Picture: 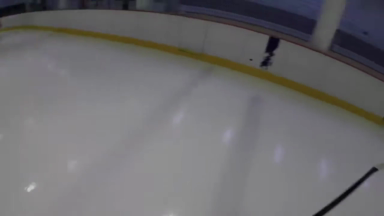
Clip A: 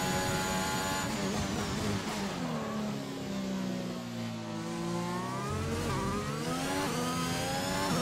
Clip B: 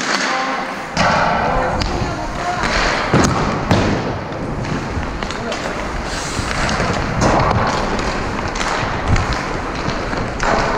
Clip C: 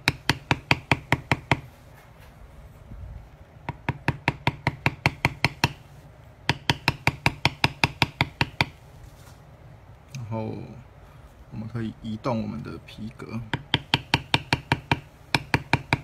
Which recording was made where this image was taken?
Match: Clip B